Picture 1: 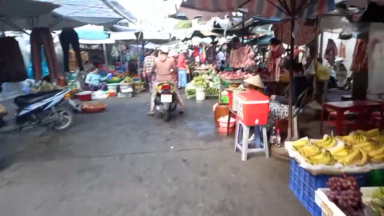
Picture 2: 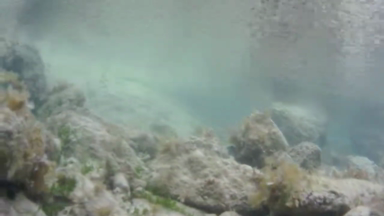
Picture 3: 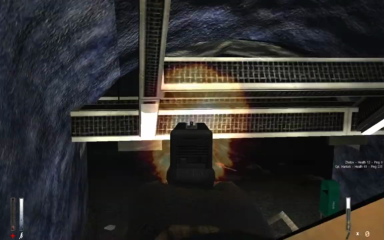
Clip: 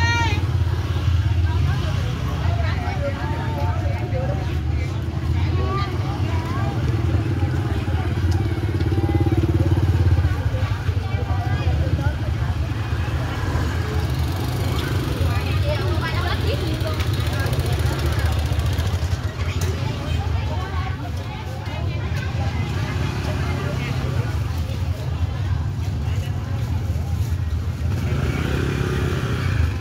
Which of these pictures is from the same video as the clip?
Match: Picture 1